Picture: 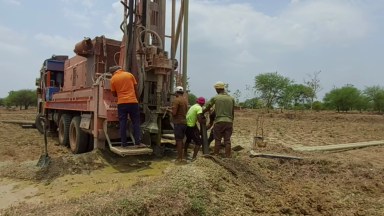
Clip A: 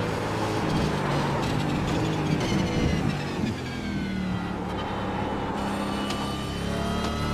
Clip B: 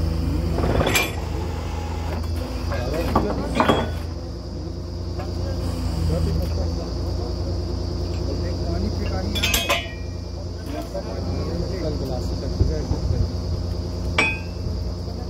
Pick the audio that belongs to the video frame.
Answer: B